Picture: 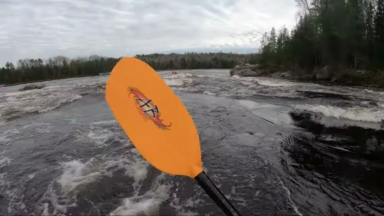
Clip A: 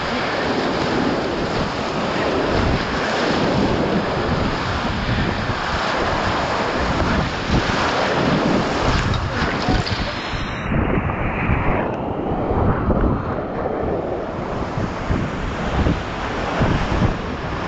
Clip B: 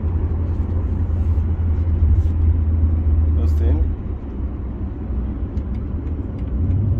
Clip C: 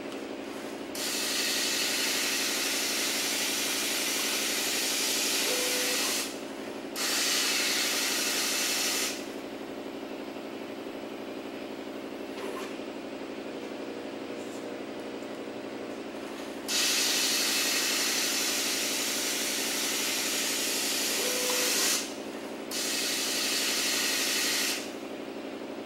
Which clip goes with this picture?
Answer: A